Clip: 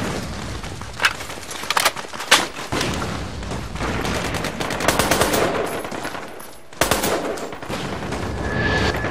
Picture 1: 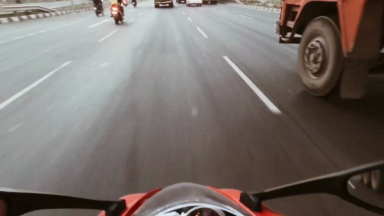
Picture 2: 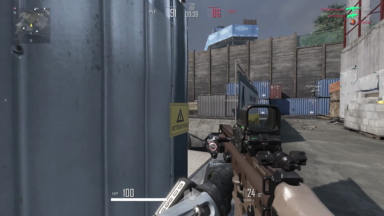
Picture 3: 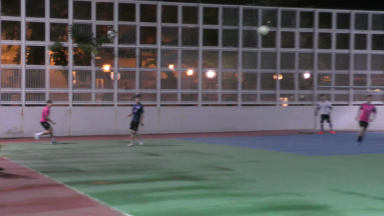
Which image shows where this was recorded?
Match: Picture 2